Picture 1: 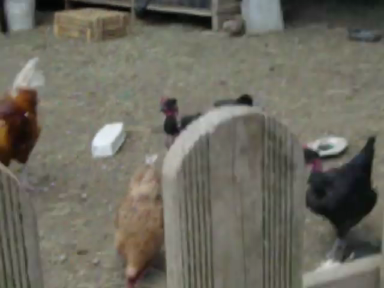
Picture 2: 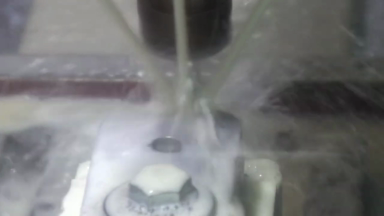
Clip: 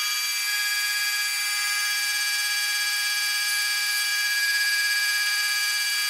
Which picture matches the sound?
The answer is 2